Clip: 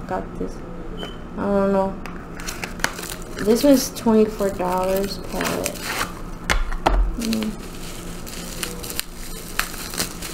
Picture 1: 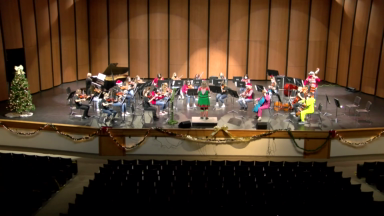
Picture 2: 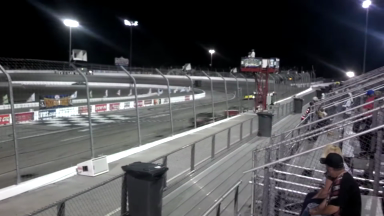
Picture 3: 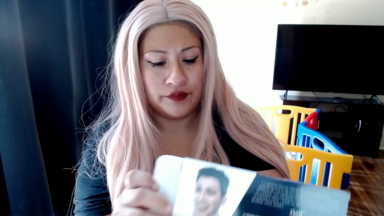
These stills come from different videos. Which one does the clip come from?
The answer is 3